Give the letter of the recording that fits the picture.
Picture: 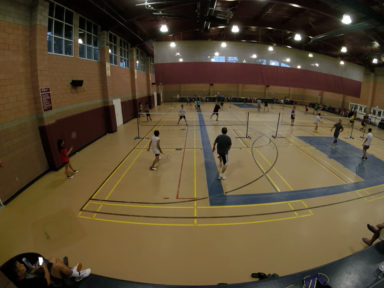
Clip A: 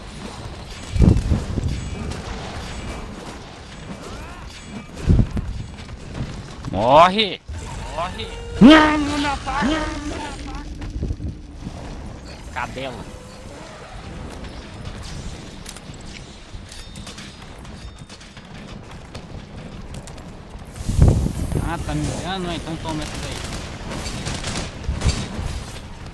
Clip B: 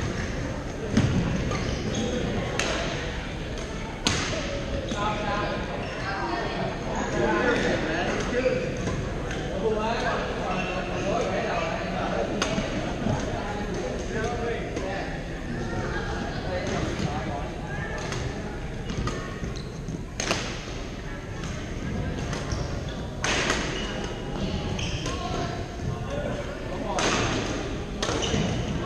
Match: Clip B